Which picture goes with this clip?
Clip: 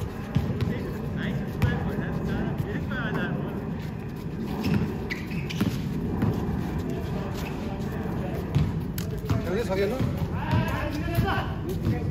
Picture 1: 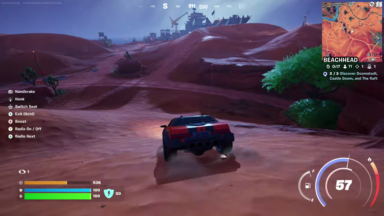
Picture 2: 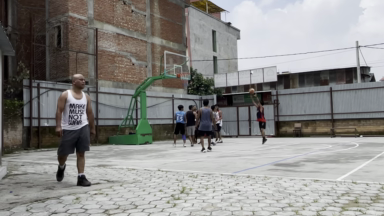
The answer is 2